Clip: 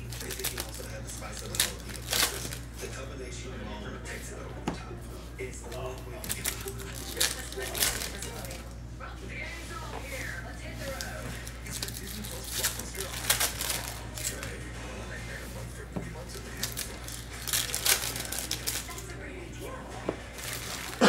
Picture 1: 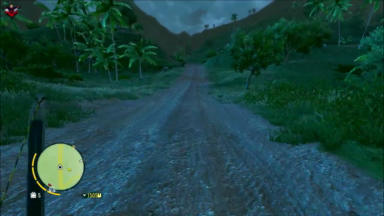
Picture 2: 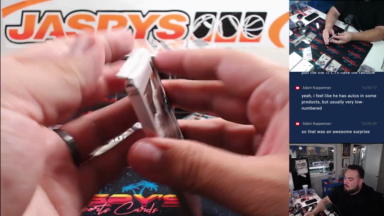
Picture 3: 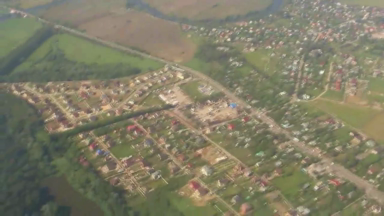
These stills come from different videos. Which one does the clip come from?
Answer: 2